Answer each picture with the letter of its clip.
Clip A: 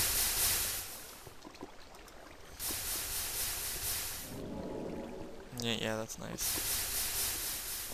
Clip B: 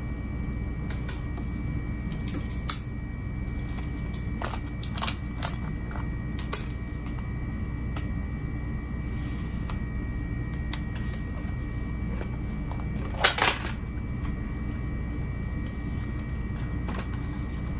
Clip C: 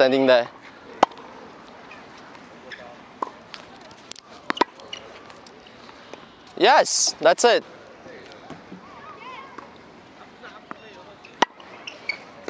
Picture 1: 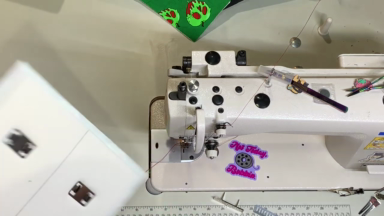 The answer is B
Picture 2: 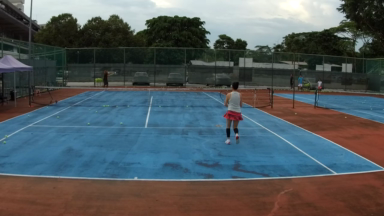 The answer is C